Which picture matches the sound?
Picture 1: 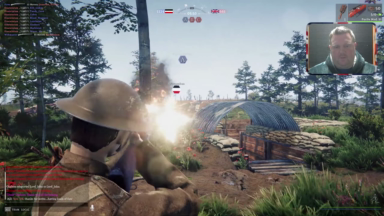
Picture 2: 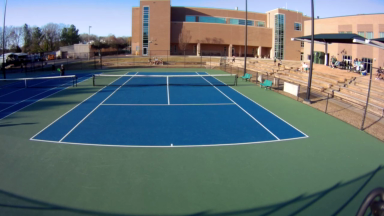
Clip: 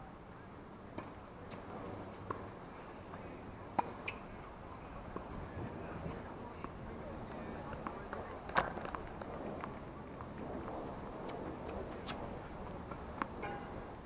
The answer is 2